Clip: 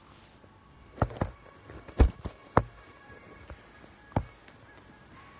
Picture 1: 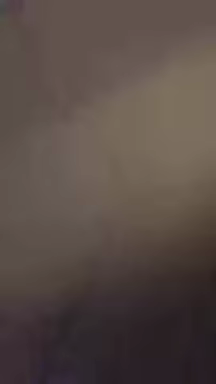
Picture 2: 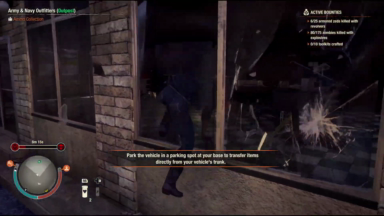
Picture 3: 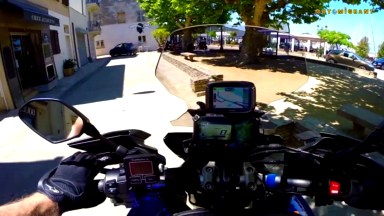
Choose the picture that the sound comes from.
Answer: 1